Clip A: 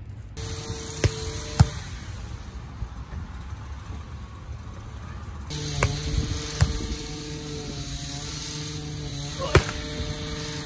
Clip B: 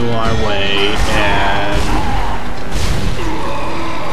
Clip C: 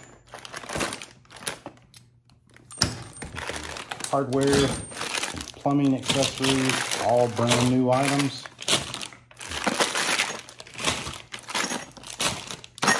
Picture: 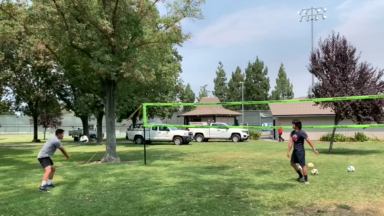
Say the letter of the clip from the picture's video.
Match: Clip A